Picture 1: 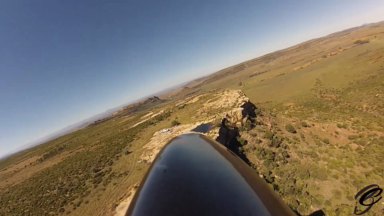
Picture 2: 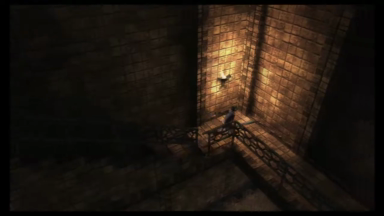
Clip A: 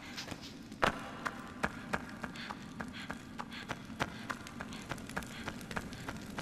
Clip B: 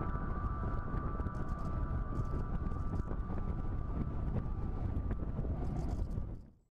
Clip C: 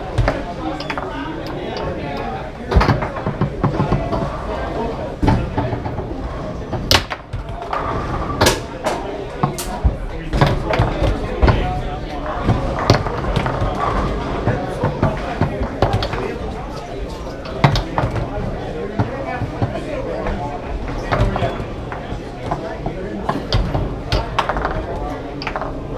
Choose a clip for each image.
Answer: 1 B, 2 A